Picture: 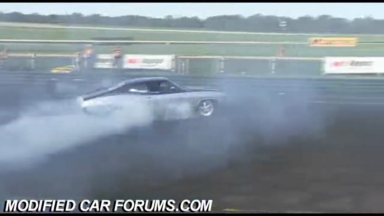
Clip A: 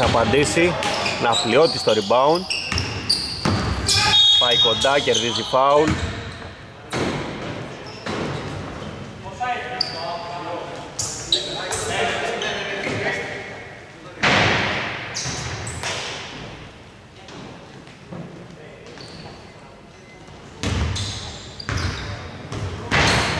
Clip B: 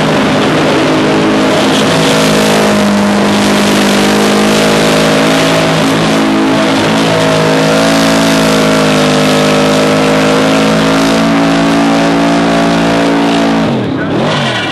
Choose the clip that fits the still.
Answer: B